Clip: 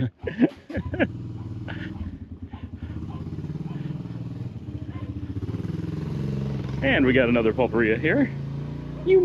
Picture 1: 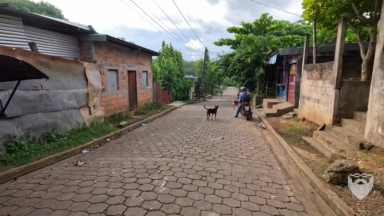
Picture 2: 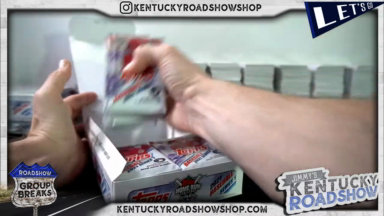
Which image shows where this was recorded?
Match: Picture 1